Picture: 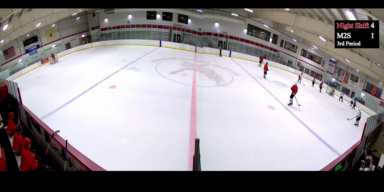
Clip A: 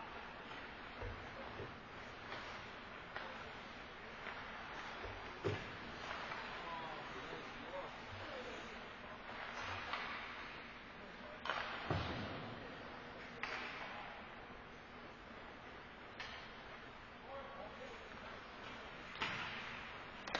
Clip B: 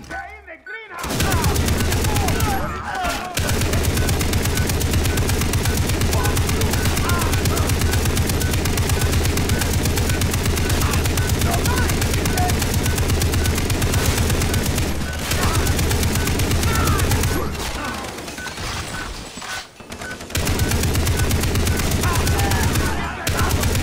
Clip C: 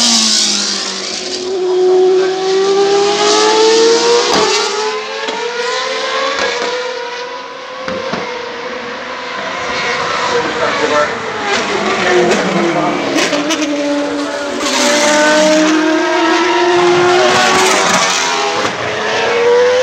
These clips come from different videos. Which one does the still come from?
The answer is A